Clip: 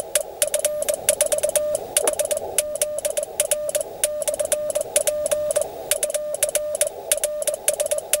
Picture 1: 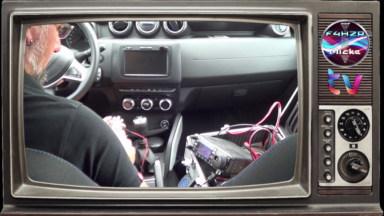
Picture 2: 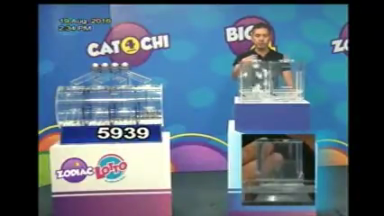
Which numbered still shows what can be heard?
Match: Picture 1